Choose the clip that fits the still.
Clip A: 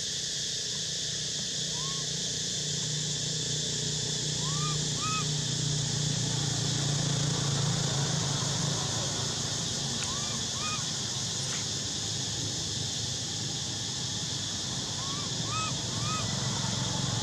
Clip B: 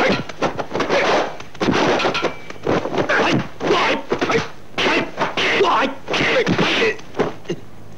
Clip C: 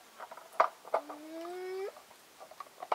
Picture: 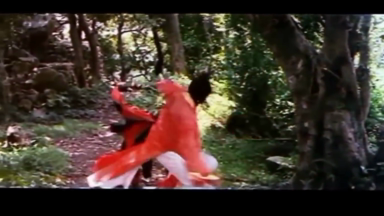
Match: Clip B